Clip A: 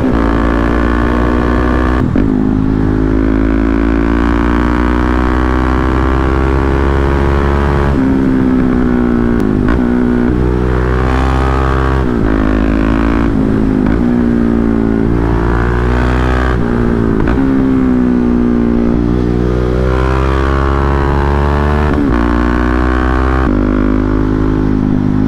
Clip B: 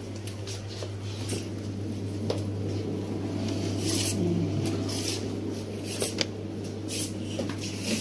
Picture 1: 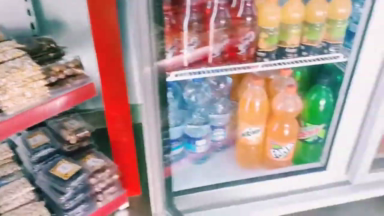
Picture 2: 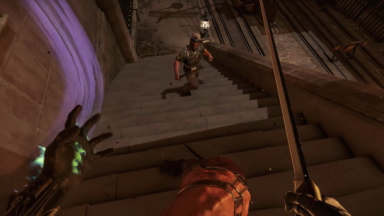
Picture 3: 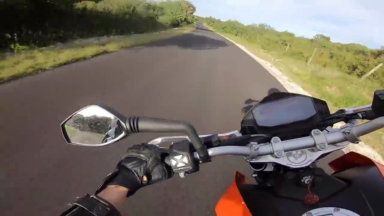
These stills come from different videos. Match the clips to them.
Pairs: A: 3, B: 1